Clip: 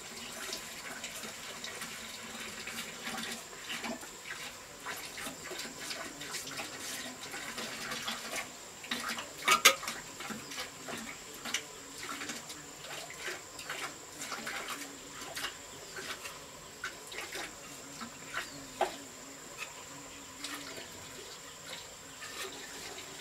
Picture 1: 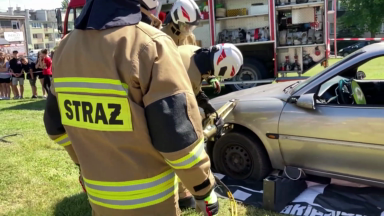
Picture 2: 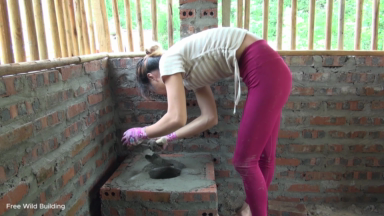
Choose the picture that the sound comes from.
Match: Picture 2